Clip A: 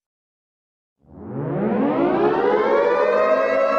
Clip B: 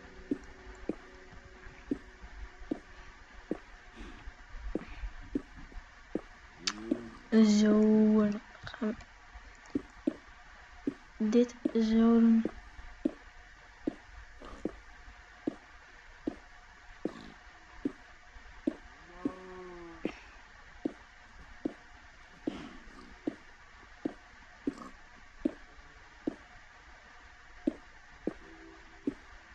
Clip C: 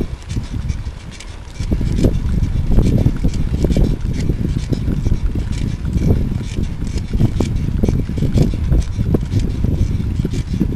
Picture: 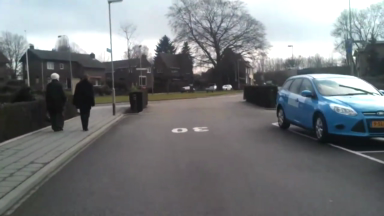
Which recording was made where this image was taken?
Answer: C